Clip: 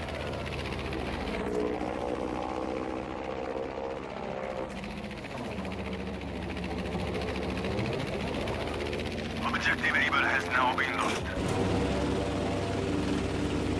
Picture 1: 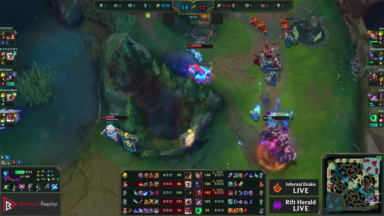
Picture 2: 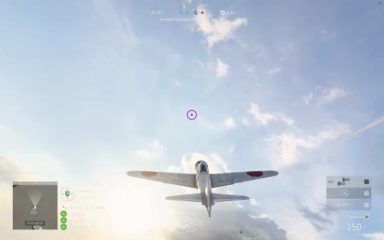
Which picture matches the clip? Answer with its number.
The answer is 2